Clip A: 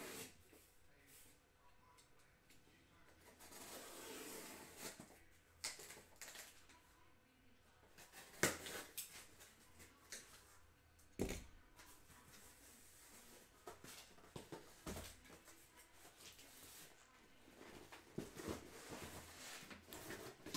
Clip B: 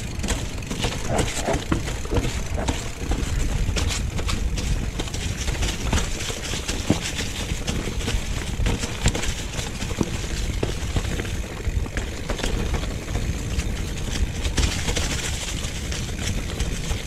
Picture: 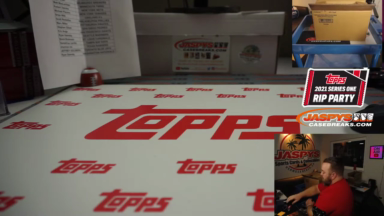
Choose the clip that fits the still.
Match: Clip A